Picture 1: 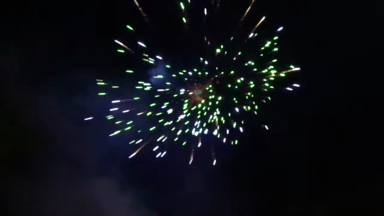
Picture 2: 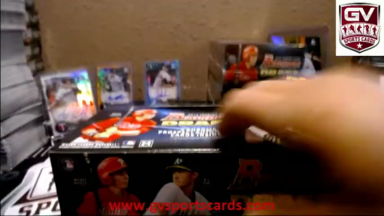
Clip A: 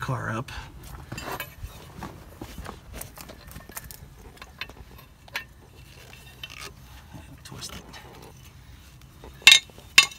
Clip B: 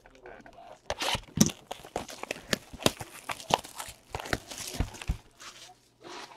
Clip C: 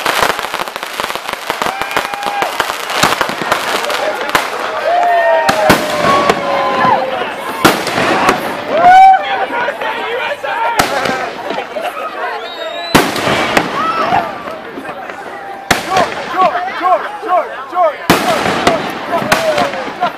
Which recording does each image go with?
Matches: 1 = C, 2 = B